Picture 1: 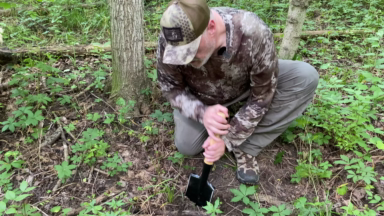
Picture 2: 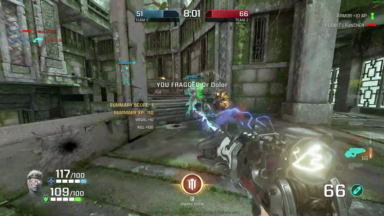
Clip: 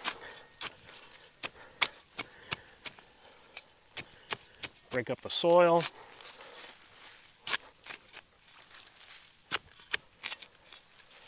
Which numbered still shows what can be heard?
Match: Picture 1